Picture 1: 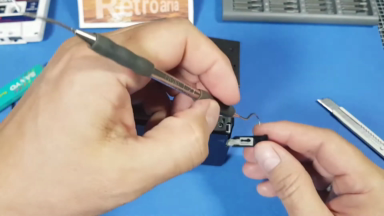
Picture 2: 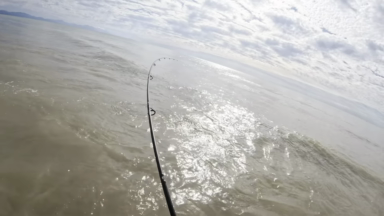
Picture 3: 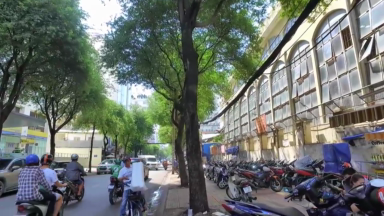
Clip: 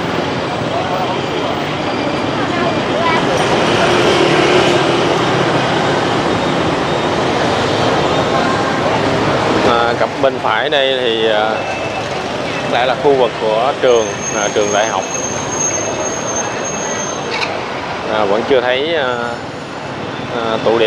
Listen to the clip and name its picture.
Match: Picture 3